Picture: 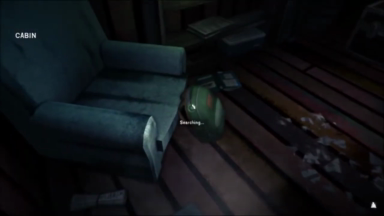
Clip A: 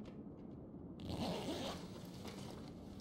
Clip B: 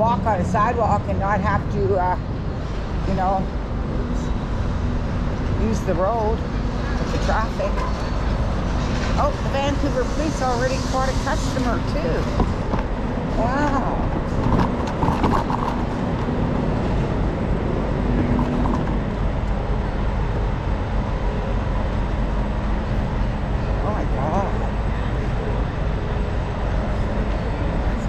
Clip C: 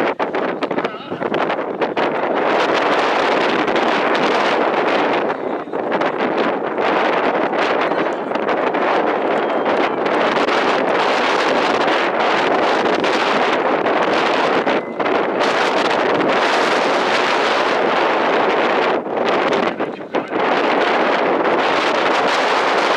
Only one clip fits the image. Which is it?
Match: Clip A